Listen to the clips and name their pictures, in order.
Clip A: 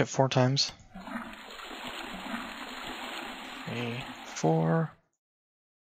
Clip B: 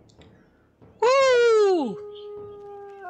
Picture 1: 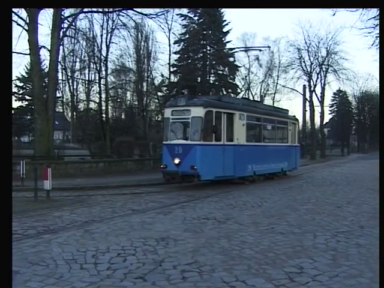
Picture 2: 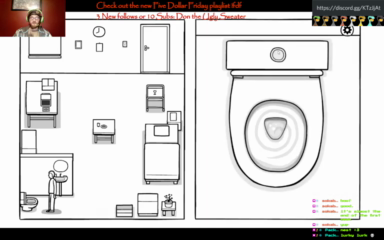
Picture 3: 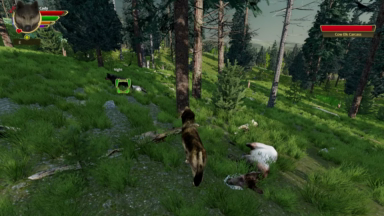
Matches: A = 2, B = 3